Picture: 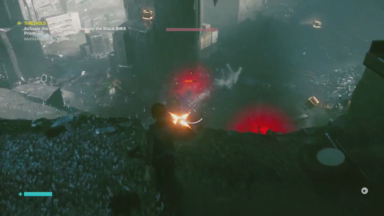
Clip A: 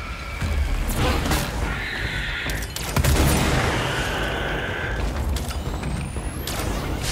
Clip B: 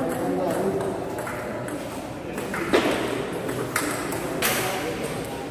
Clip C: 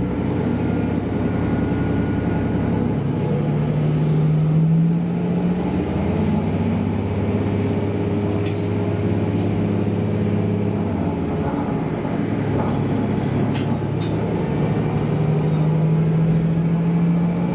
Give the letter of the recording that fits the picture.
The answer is A